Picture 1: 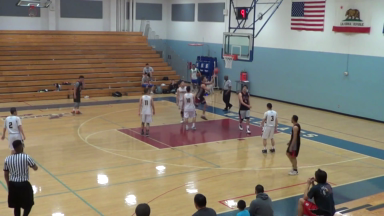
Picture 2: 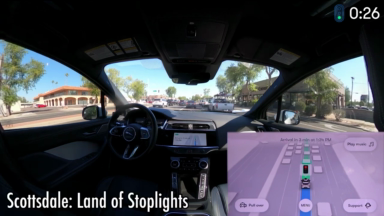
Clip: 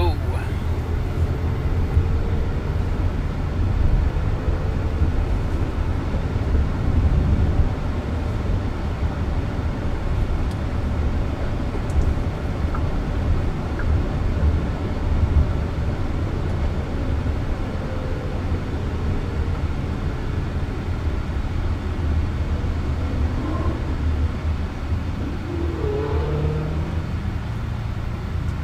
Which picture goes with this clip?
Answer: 2